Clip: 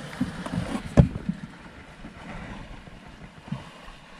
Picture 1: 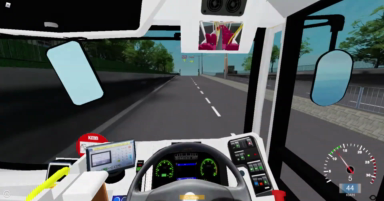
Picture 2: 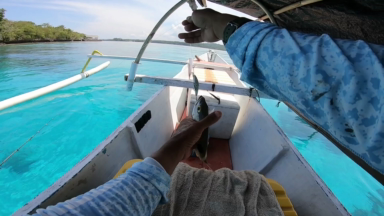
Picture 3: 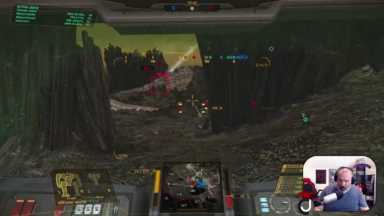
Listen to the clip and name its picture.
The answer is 2